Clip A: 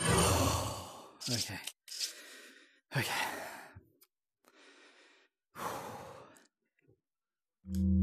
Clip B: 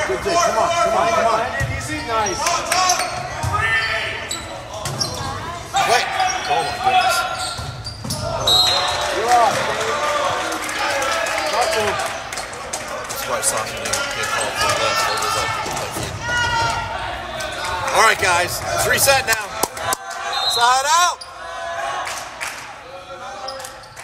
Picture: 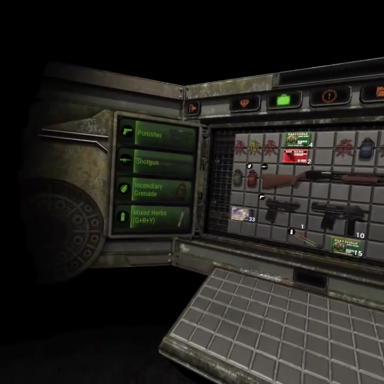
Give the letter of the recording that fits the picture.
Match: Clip A